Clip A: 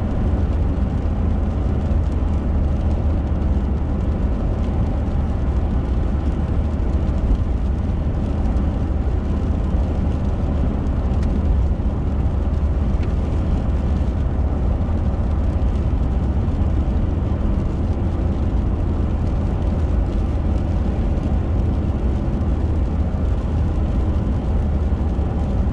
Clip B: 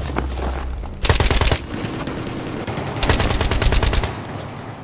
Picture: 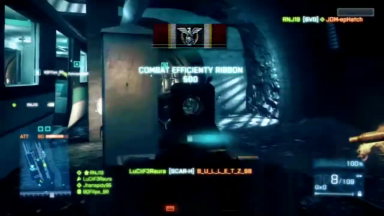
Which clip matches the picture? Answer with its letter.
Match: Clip B